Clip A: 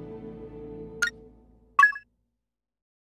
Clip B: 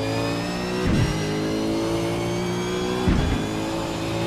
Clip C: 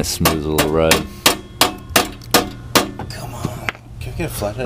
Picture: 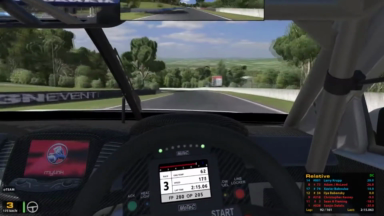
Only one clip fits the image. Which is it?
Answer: B